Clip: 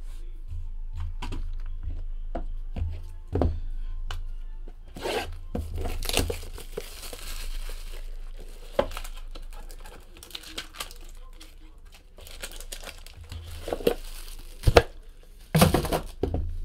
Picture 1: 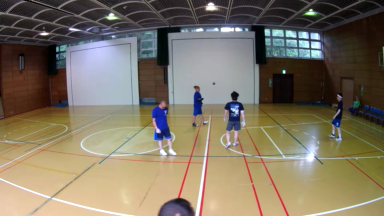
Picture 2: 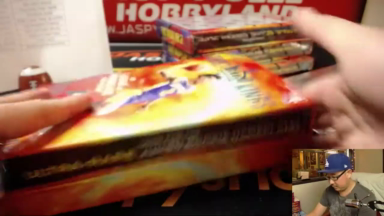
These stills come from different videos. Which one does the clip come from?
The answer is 2